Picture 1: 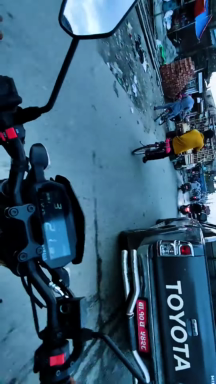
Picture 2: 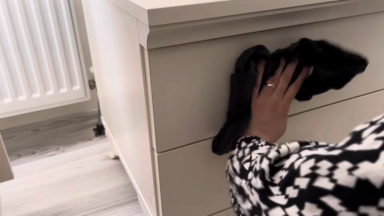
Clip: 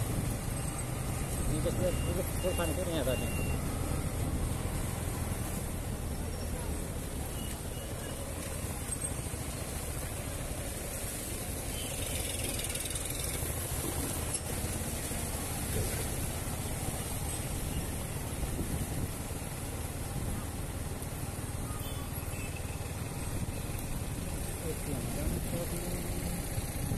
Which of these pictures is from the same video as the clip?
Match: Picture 1